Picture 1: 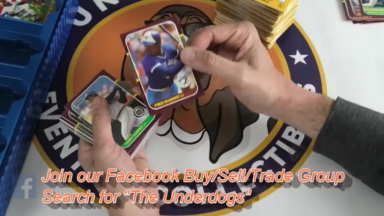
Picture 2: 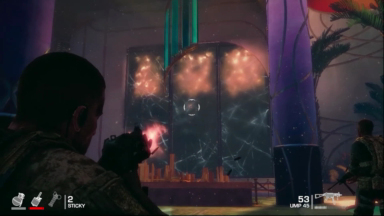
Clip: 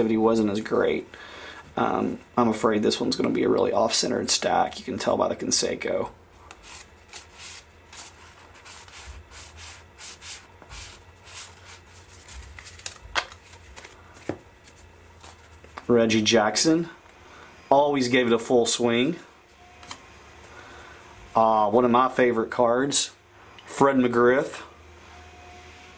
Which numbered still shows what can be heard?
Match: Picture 1